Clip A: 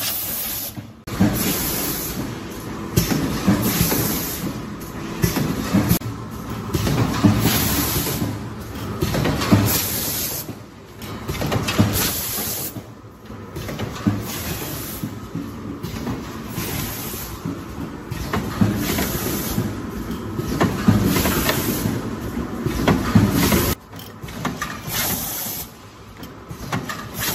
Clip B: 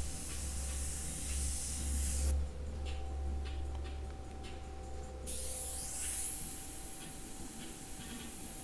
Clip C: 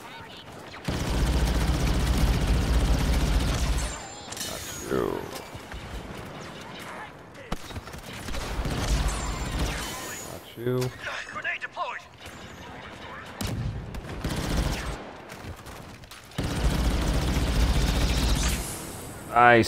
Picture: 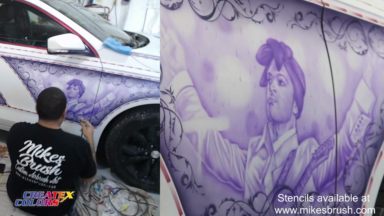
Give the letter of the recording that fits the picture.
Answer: B